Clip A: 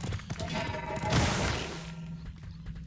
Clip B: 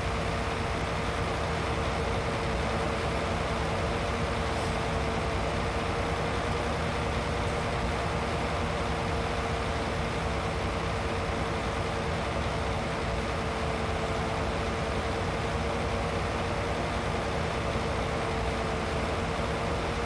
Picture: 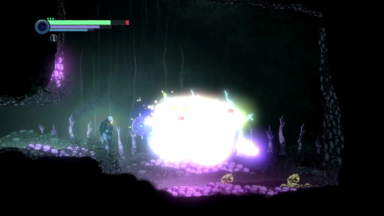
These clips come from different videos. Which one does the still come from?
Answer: A